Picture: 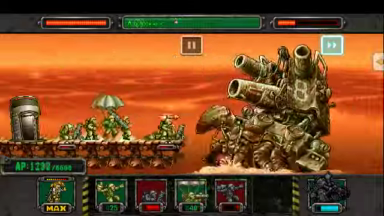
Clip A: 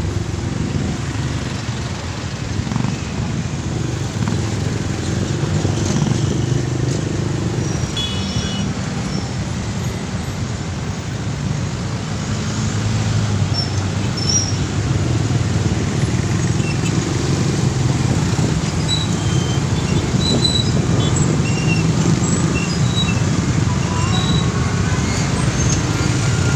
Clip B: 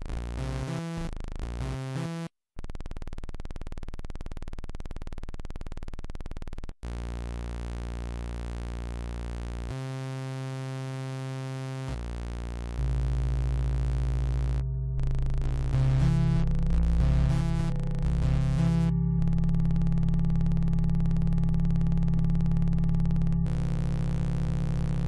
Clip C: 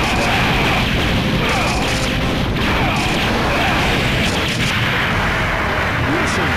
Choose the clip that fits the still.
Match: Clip C